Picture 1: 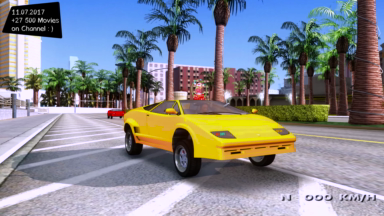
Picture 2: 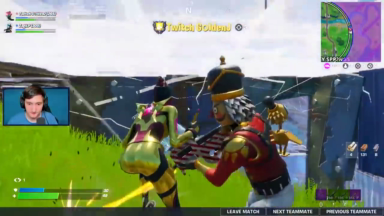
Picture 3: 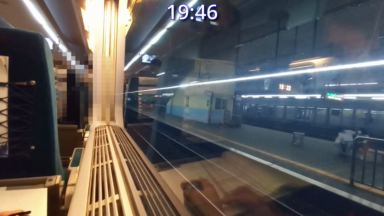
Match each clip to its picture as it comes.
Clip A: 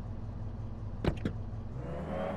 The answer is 1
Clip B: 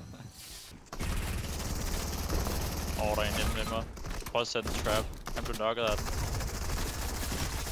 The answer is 2